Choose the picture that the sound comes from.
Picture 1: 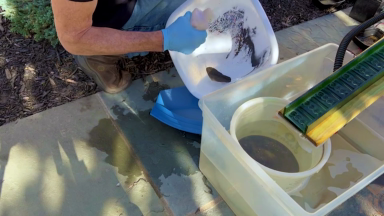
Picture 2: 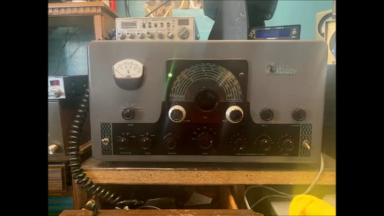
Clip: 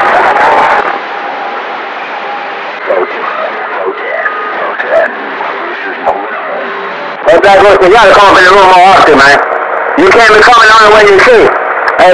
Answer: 2